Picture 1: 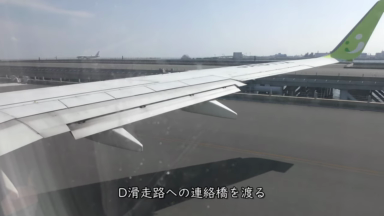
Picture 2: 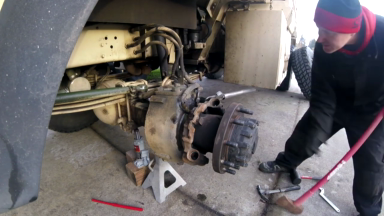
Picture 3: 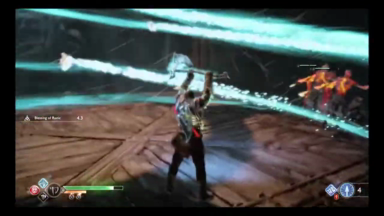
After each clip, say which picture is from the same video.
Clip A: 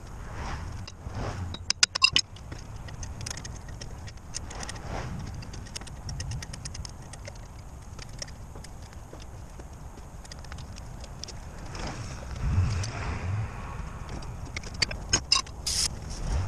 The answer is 2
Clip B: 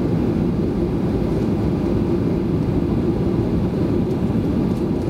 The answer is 1